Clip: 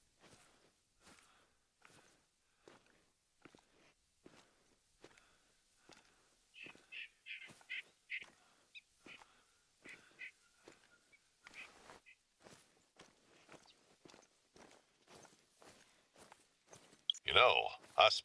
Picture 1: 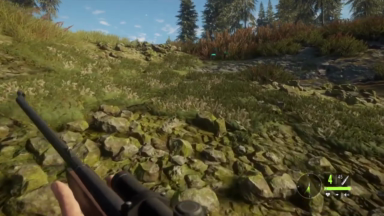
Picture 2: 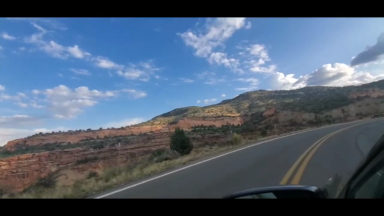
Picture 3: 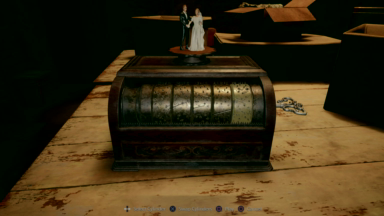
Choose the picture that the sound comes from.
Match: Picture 1